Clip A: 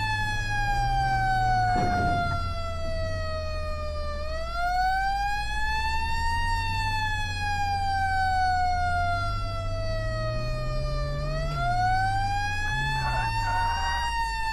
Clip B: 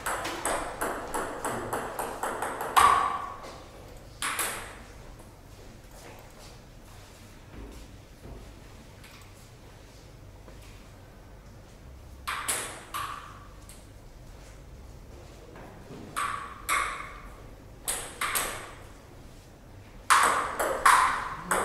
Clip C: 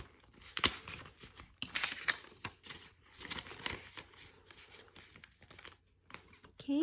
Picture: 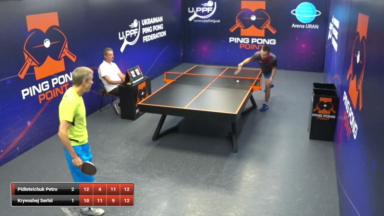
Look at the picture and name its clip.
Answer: B